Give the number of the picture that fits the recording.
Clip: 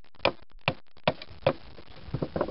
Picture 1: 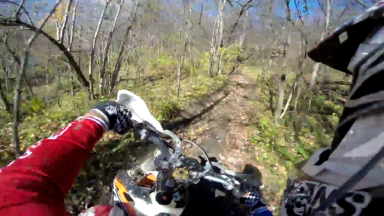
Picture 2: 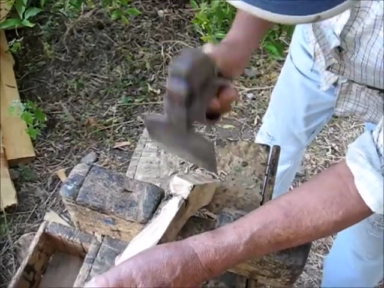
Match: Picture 2